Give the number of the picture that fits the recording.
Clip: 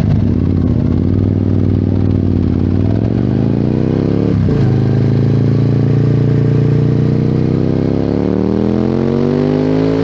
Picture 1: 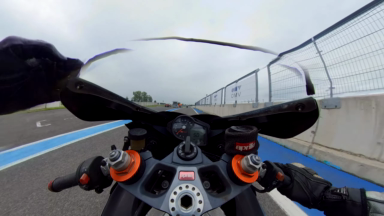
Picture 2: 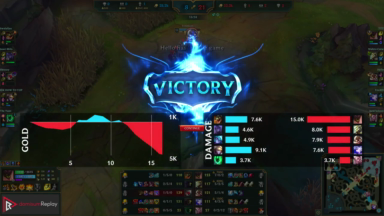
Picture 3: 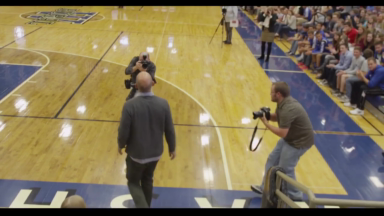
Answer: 1